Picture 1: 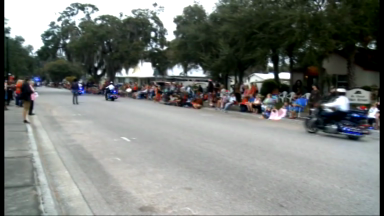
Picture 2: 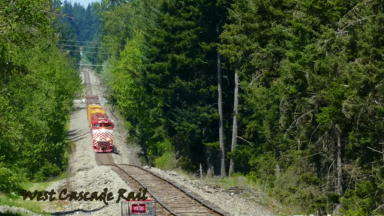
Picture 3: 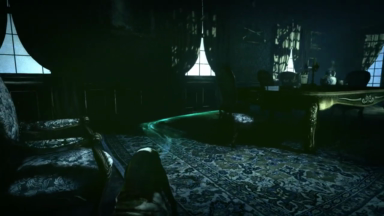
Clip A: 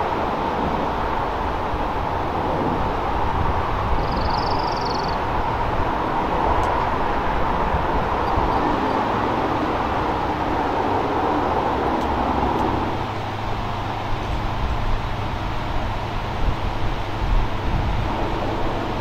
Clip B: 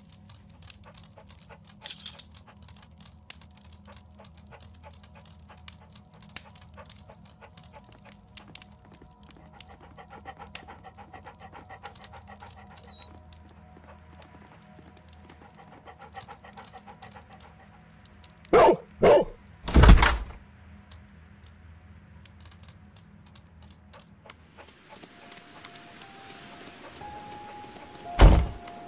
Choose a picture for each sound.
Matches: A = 2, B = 3